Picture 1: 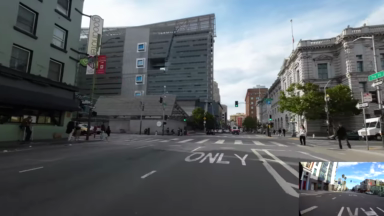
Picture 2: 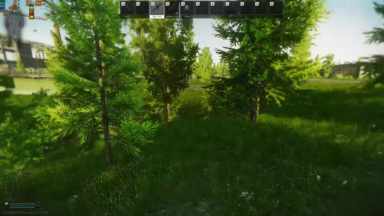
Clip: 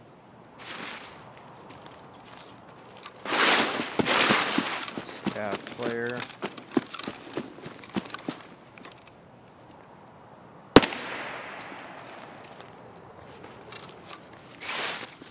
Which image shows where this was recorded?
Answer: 2